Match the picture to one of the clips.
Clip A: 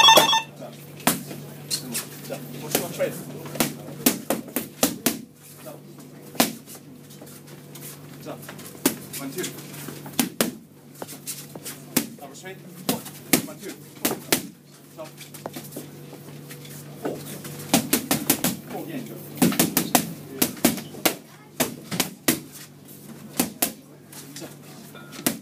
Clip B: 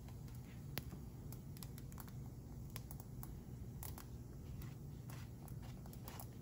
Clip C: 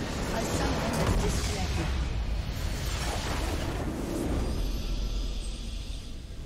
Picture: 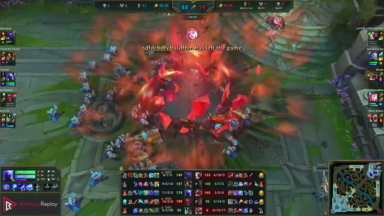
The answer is C